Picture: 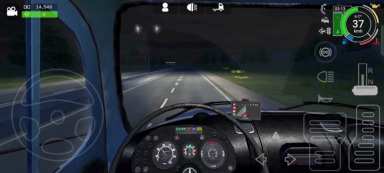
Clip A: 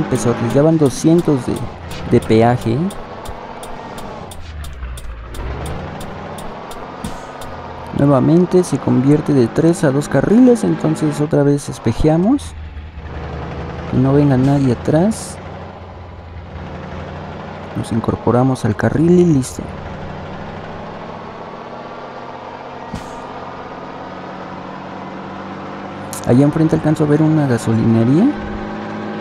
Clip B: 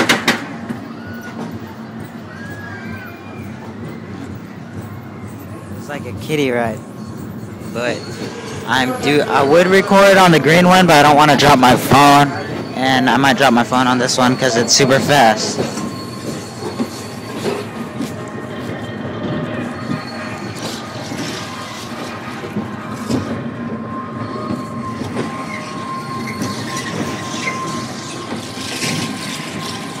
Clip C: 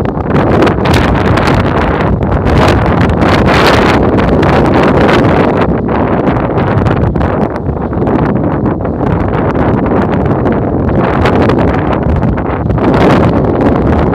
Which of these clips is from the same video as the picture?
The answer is A